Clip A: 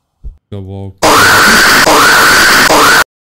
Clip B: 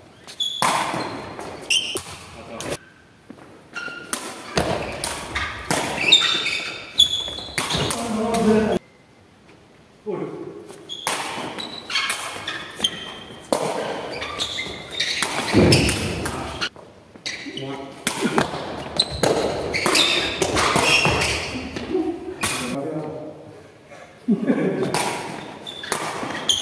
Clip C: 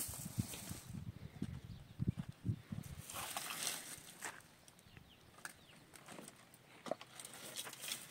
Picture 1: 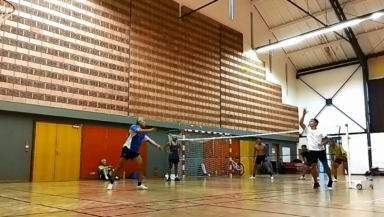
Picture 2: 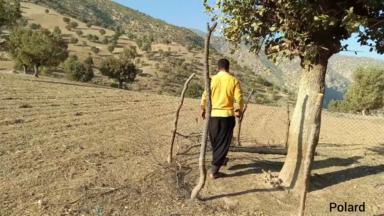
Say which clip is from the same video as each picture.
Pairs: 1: B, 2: C